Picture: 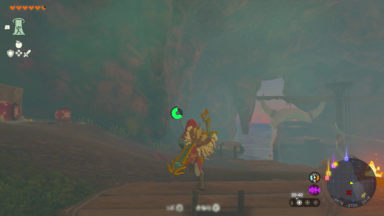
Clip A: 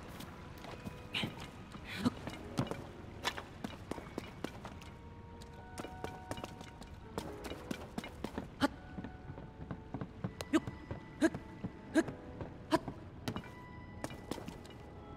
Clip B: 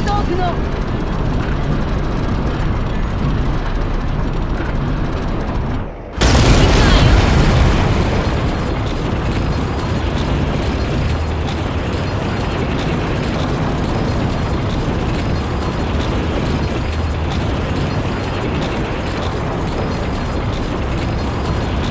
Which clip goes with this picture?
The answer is A